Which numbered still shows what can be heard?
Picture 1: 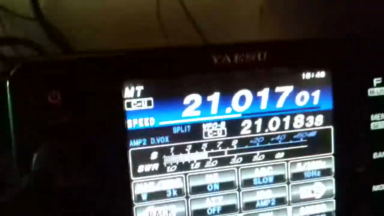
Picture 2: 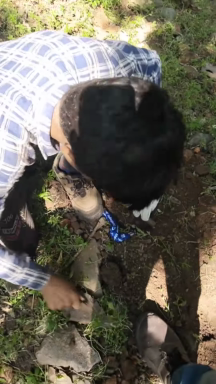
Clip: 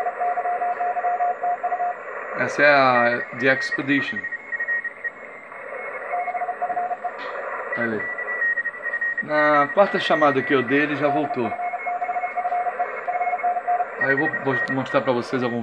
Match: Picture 1